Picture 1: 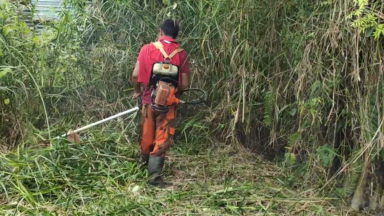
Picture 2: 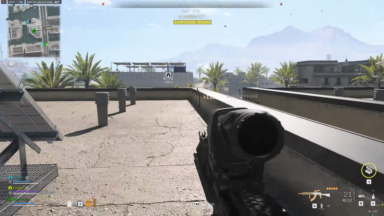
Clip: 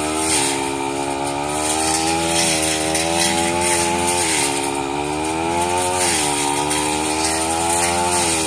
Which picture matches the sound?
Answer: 1